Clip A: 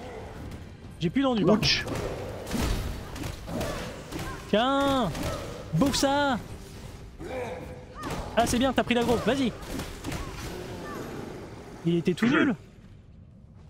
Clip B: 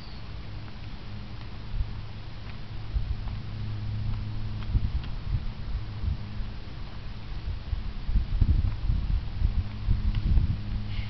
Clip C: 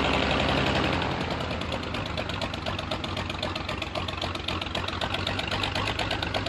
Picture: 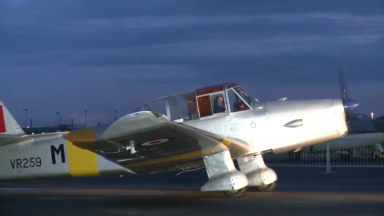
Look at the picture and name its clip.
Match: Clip C